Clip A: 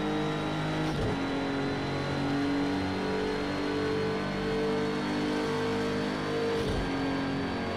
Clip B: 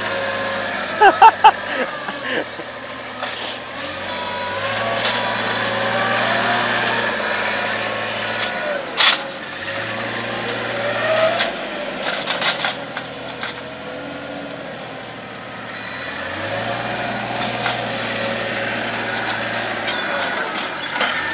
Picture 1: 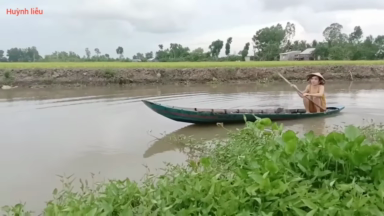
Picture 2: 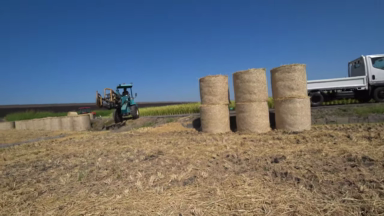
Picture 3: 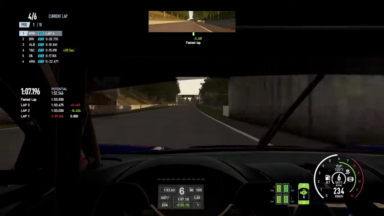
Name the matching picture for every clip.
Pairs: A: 3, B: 2